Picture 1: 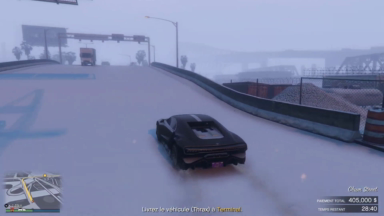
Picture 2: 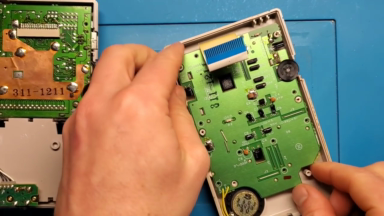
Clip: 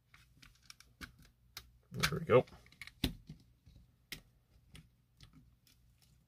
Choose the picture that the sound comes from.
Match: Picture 2